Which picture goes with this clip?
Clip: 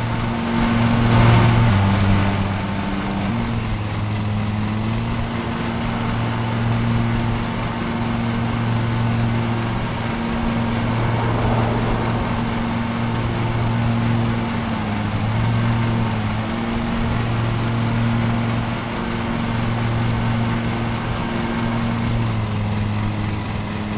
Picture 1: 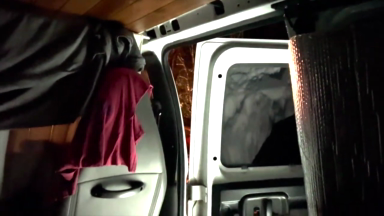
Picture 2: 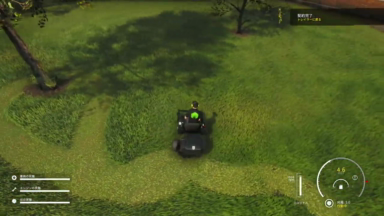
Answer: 2